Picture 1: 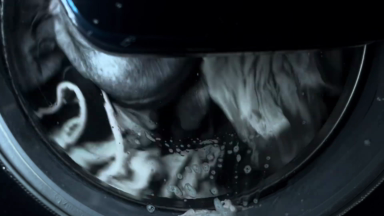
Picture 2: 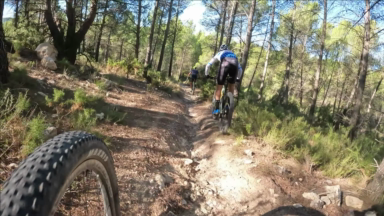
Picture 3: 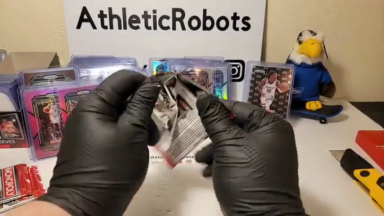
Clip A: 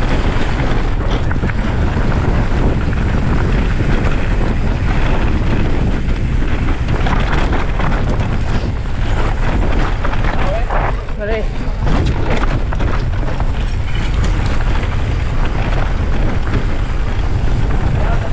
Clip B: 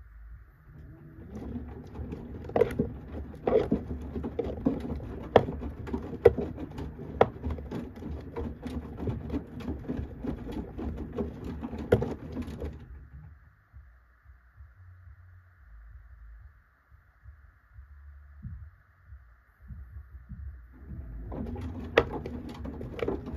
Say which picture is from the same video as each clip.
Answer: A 2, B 1